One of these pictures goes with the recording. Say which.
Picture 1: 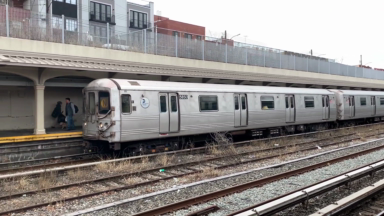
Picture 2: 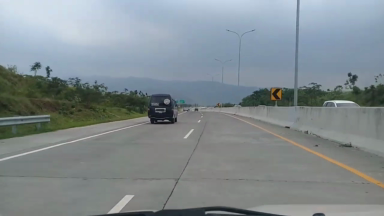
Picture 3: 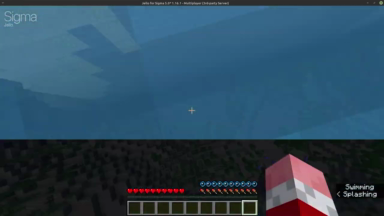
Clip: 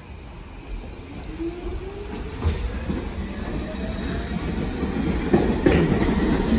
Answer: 1